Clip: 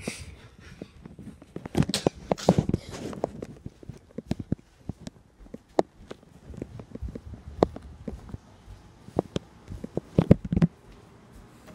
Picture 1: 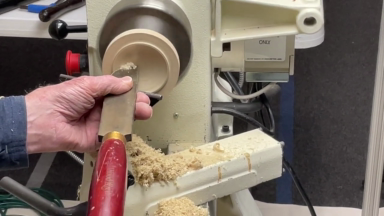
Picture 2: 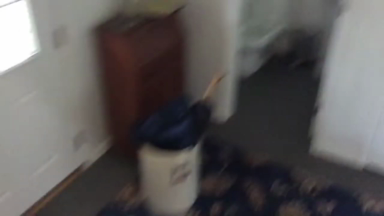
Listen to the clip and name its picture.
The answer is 2